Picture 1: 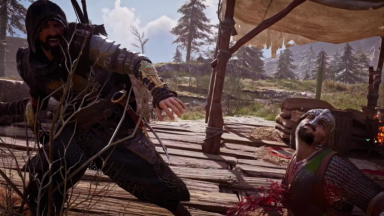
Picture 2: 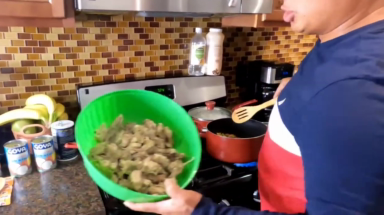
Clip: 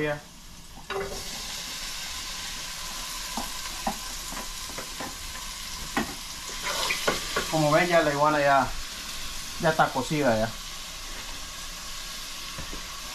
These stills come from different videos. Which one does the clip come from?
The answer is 2